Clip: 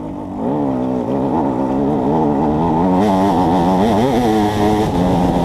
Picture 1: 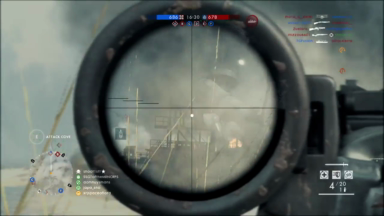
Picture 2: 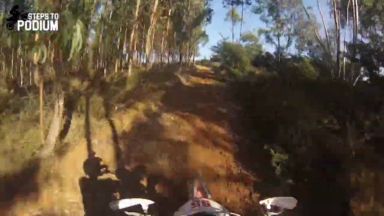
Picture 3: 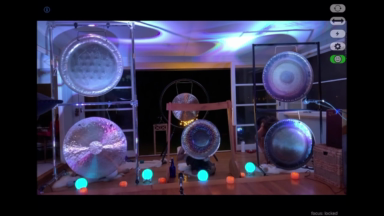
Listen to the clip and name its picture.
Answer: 2